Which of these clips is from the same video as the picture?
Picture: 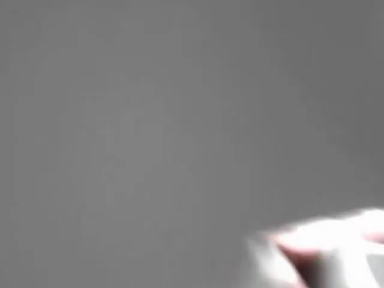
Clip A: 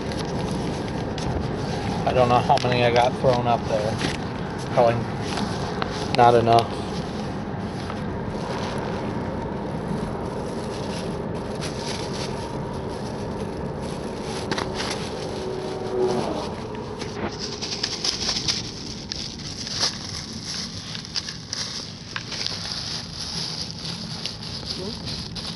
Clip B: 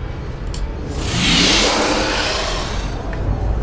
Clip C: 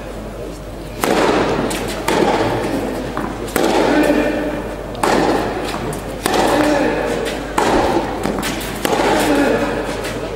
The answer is A